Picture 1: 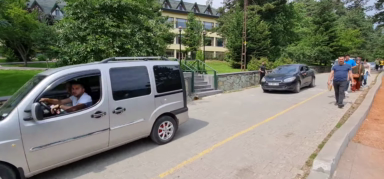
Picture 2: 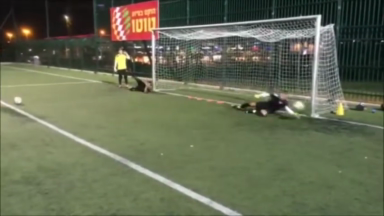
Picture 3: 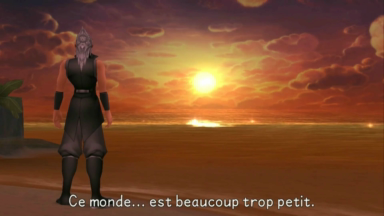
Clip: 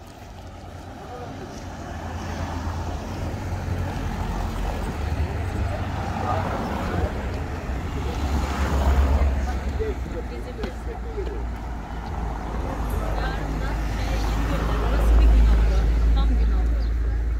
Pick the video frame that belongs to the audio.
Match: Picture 1